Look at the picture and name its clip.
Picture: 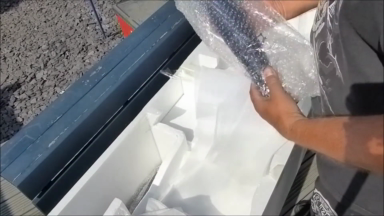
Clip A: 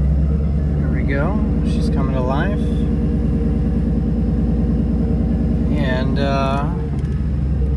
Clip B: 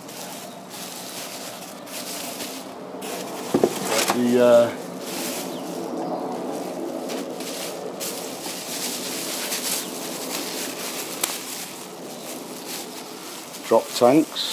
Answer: B